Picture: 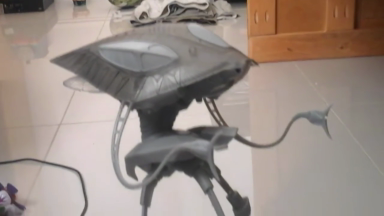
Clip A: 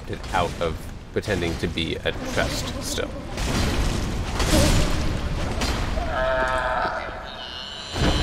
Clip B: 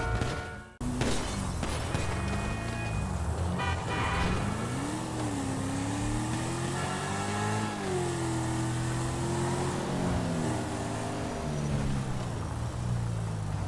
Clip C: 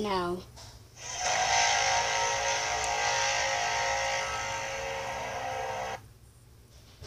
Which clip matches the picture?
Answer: C